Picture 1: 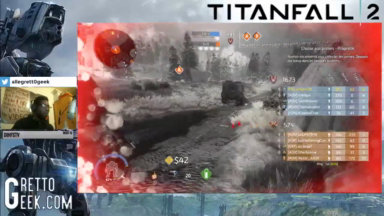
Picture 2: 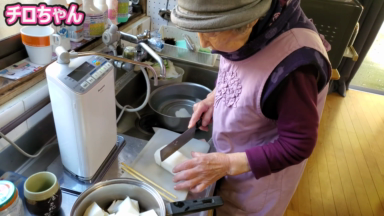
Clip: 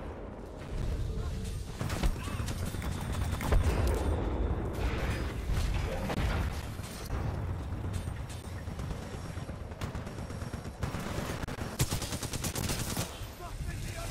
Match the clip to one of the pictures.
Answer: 1